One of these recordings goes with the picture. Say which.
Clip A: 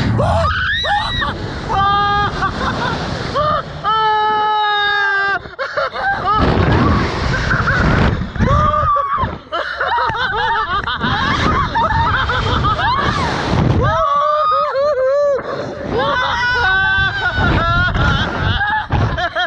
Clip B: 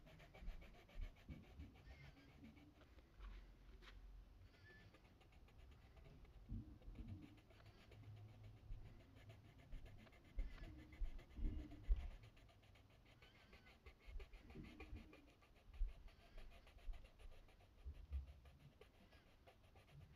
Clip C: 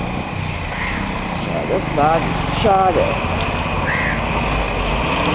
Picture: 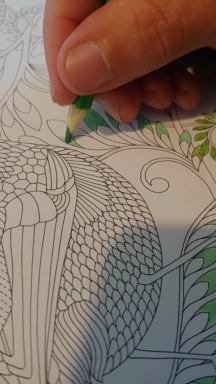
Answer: B